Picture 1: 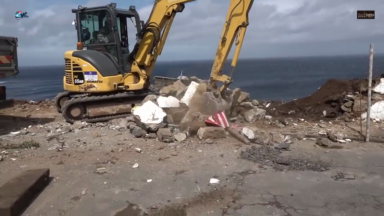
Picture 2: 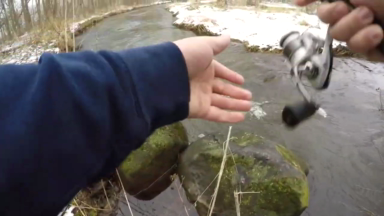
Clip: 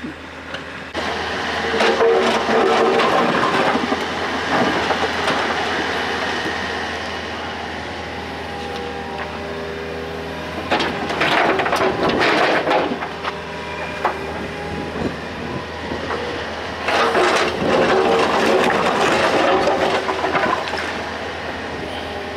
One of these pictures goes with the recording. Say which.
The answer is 1